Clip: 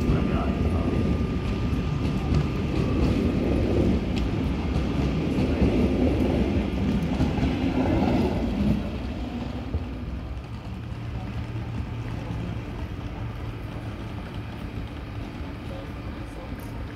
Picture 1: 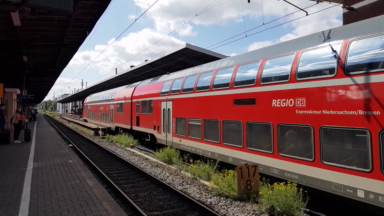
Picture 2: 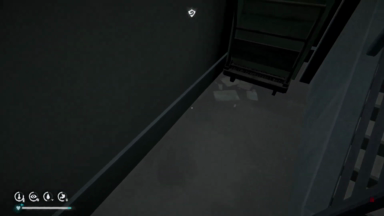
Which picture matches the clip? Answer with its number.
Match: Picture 1